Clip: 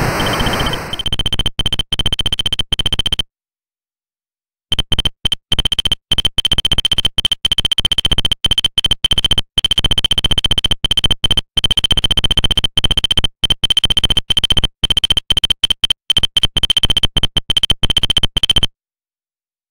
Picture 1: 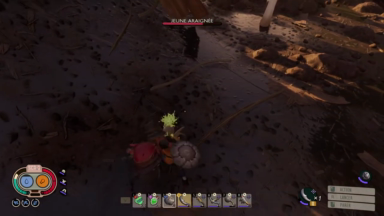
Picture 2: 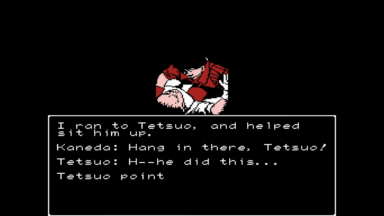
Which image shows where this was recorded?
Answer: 2